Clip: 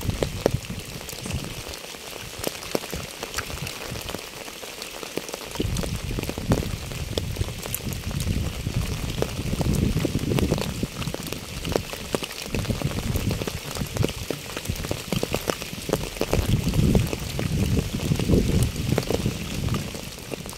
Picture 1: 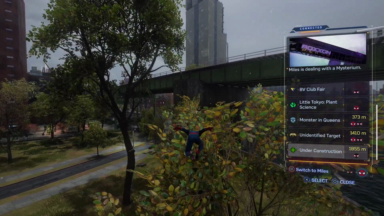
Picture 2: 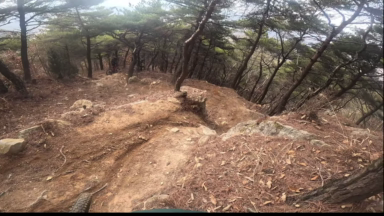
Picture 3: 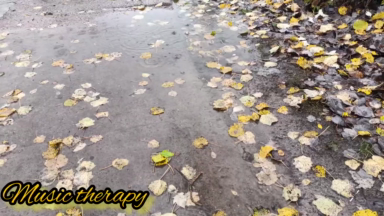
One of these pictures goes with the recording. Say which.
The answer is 3